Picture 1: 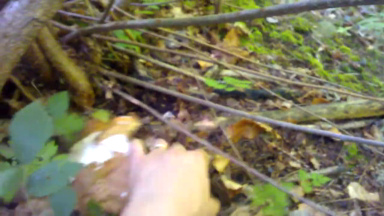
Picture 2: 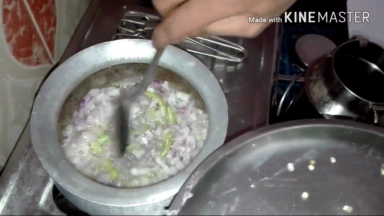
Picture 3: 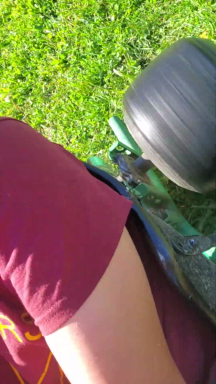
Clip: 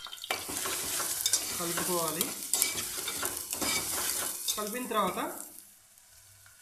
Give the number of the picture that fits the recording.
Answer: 2